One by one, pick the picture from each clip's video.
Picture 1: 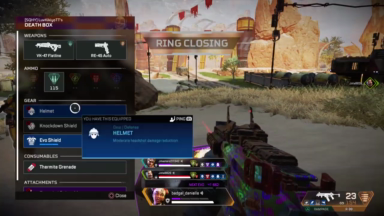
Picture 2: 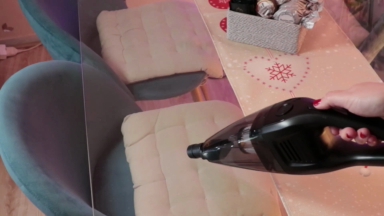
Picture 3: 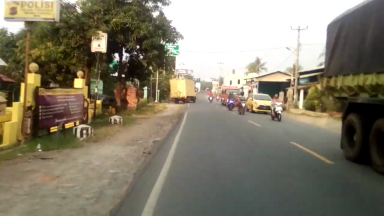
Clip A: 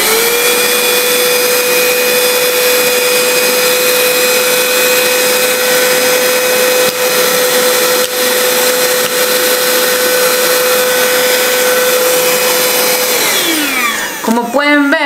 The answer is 2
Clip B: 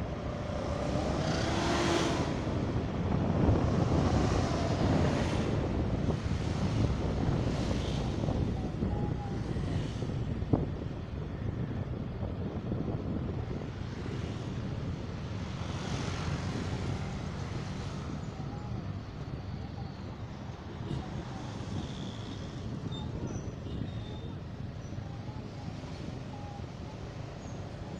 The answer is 3